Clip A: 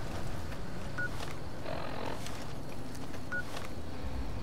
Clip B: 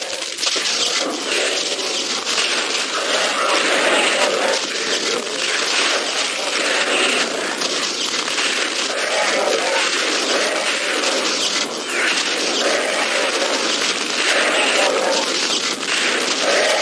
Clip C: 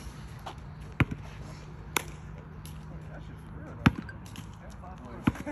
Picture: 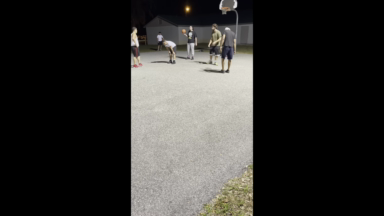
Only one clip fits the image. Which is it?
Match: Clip C